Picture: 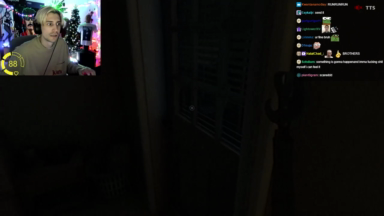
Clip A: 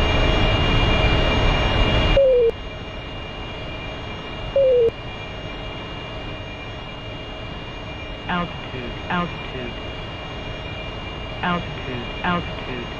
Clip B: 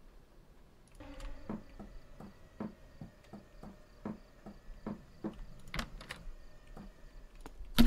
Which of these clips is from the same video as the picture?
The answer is B